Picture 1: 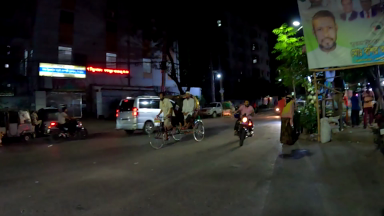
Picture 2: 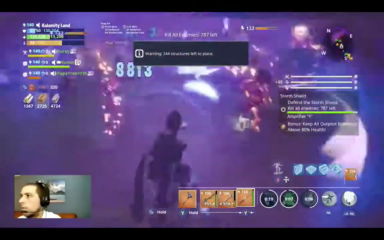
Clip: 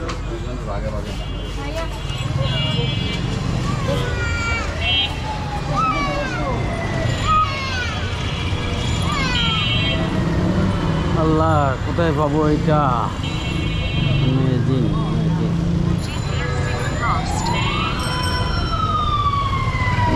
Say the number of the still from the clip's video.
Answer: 1